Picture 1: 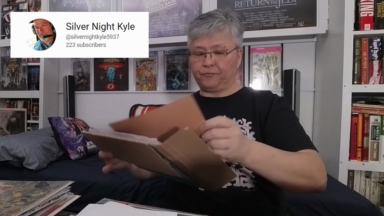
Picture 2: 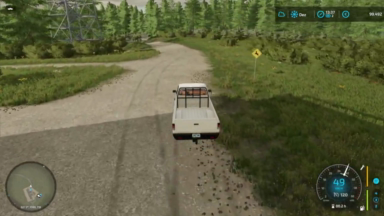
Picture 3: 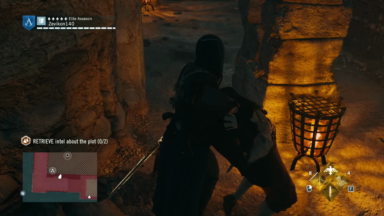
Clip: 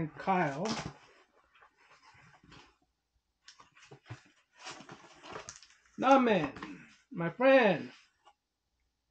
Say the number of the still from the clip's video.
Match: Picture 1